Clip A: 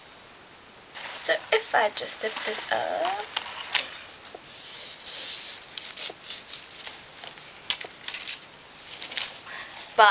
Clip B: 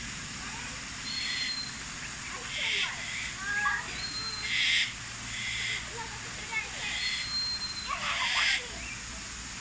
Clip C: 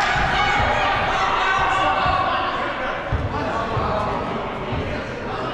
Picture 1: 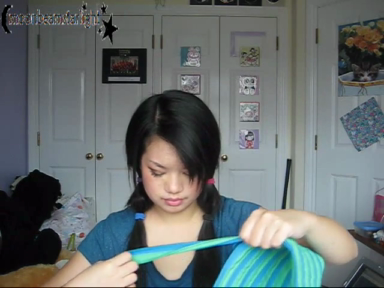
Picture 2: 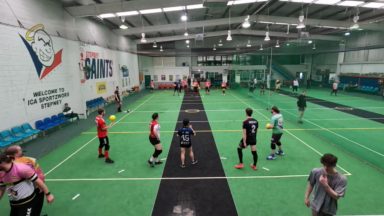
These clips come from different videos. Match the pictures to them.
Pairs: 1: A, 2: C